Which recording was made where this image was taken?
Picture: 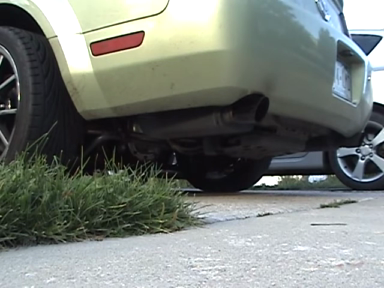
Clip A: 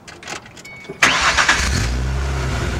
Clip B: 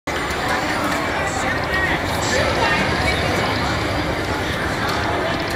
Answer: A